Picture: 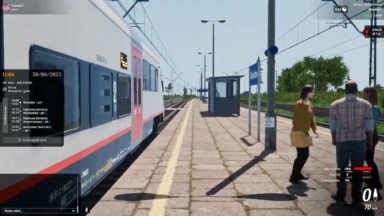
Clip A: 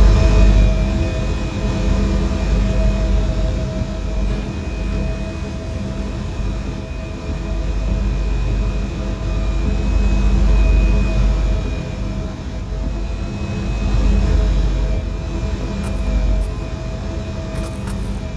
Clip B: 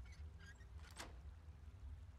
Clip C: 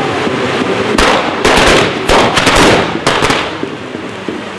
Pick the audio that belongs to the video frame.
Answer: A